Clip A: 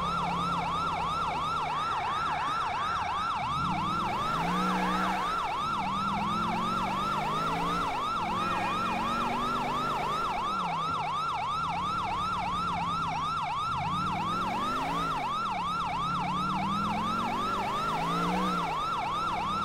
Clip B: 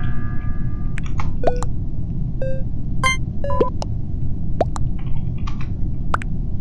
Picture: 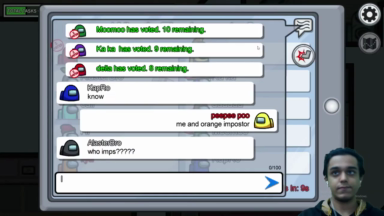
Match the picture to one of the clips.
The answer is B